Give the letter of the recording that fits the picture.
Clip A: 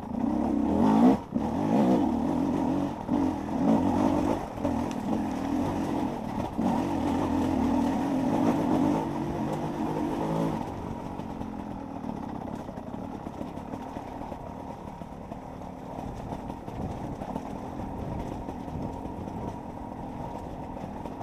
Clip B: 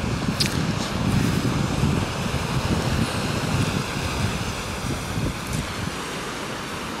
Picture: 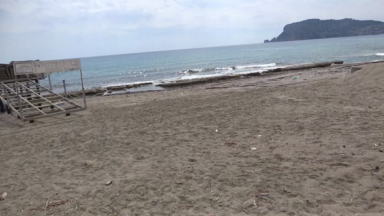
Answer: B